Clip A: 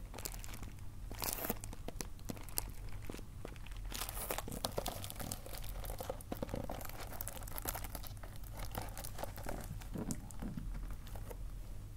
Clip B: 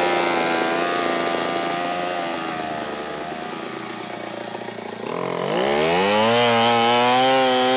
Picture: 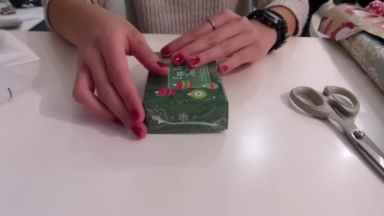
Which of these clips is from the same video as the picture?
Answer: A